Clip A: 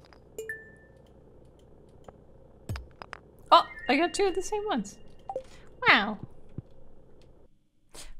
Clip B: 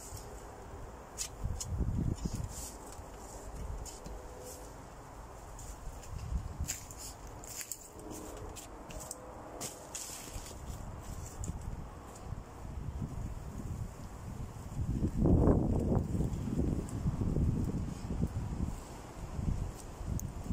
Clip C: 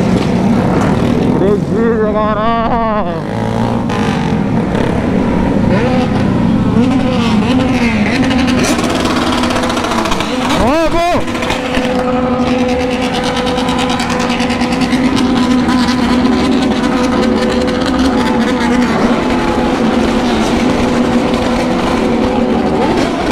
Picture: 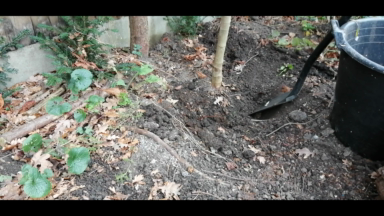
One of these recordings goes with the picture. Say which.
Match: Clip B